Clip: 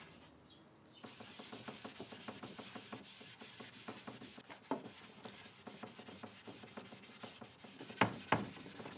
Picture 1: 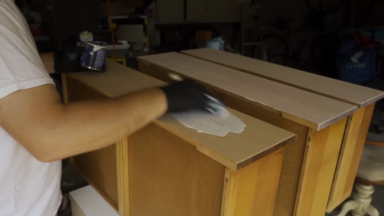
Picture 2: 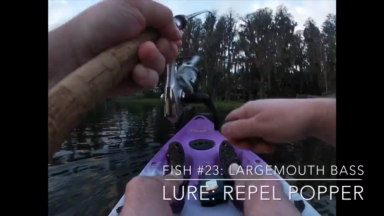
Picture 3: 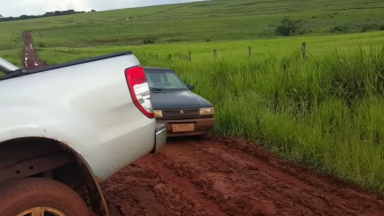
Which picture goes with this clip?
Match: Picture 1